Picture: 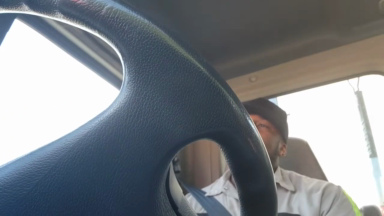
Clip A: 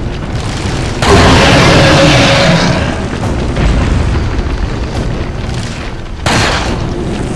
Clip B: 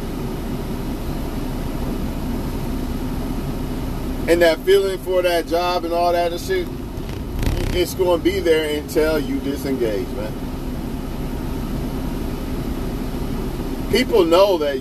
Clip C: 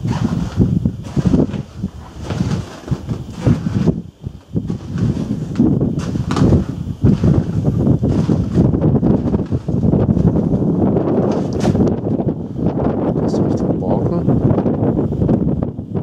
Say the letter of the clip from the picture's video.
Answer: B